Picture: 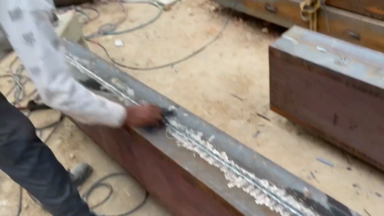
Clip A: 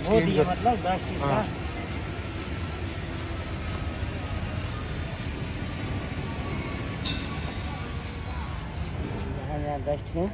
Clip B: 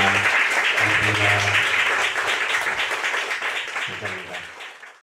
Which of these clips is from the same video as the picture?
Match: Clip A